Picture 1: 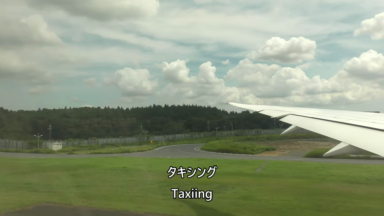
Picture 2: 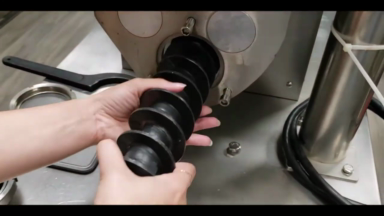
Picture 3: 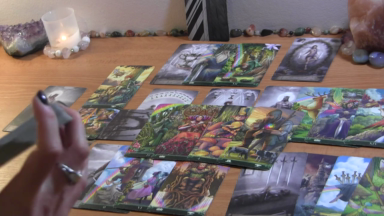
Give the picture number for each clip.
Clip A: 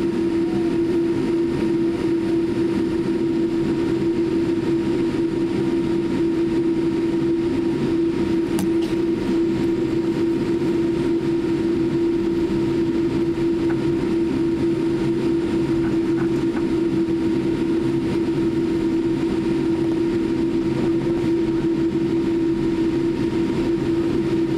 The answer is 1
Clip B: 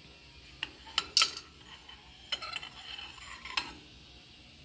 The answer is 2